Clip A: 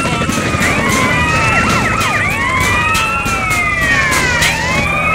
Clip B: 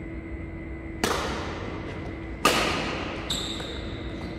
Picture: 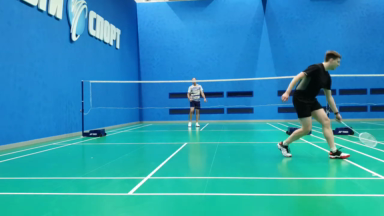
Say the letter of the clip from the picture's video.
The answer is B